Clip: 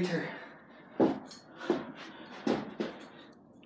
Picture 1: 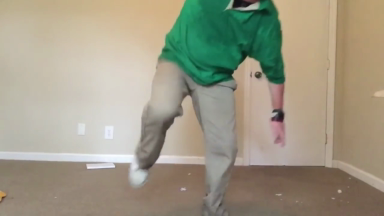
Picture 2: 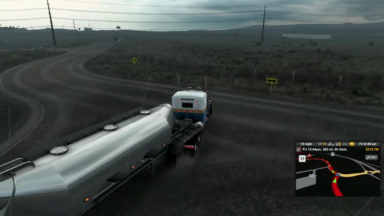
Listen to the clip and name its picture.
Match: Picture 1